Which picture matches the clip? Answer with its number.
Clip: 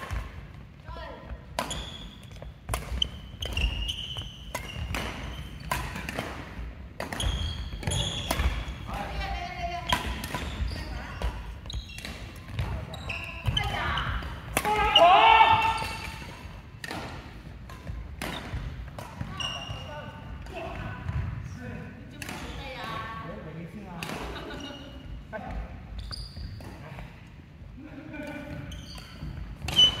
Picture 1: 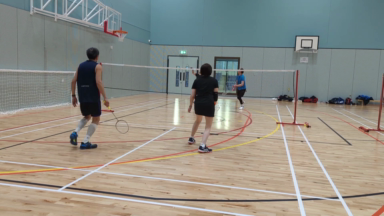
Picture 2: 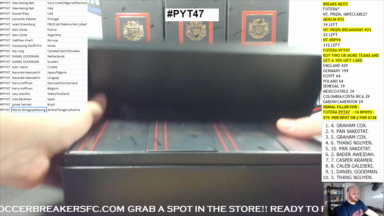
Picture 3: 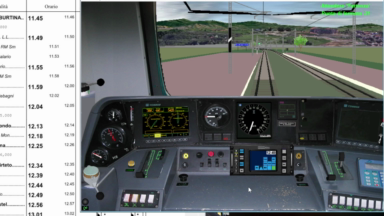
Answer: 1